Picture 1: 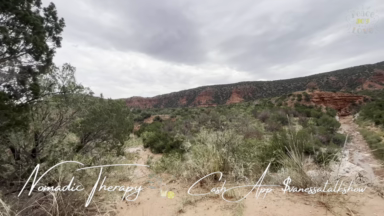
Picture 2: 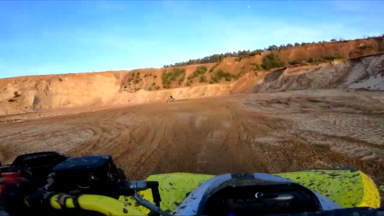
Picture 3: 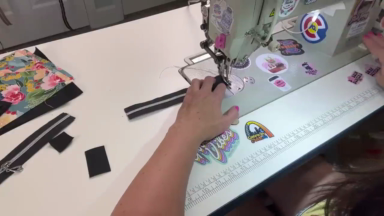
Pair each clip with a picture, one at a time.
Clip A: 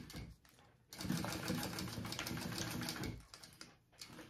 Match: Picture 3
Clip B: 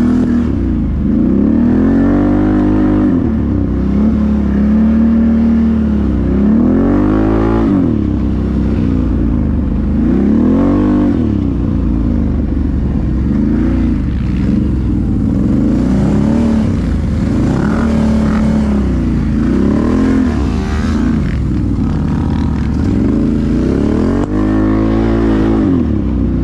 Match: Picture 2